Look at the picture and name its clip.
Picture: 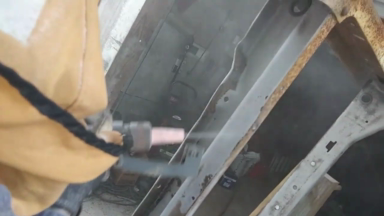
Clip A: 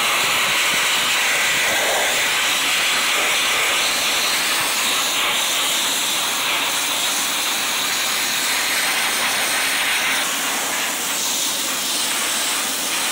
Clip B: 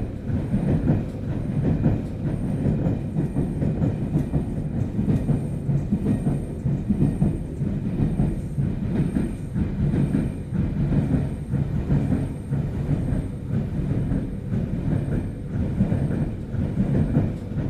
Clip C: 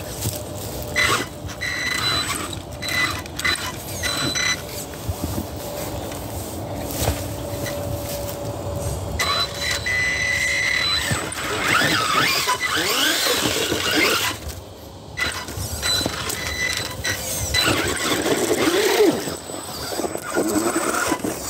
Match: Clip A